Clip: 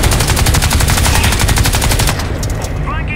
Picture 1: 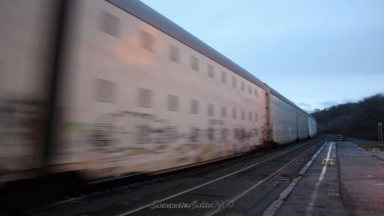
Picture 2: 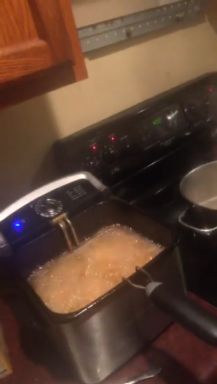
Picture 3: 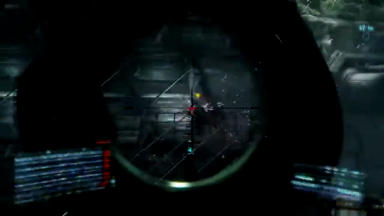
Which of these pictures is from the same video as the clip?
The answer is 3